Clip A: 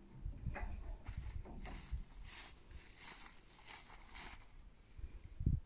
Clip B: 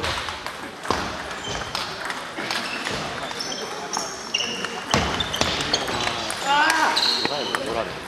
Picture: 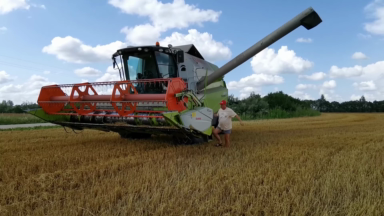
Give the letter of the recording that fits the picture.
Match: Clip A